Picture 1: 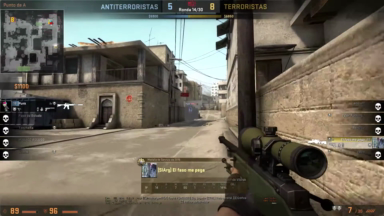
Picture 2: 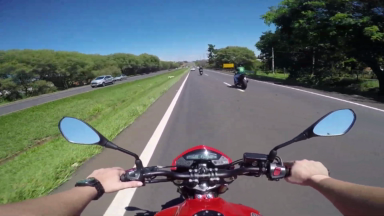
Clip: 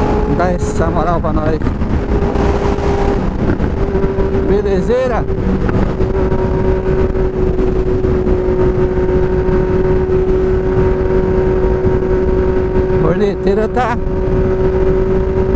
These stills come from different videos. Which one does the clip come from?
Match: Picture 2